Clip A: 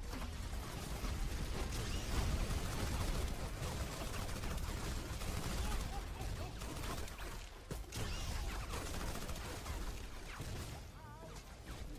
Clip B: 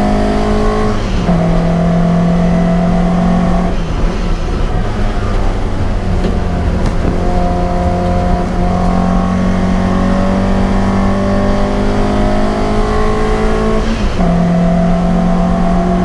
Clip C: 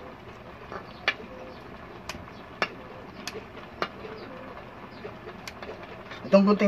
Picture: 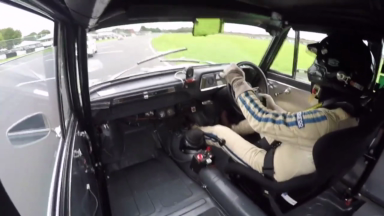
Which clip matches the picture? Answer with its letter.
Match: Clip B